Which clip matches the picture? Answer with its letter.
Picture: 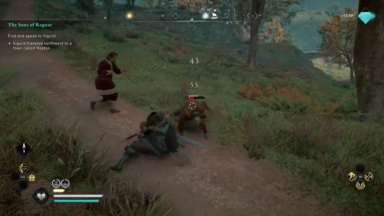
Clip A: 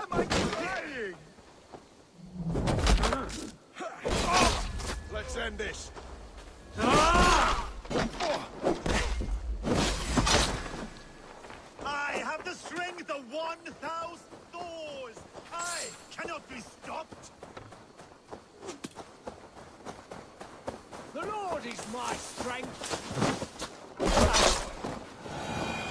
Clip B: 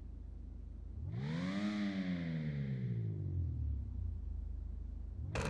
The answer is A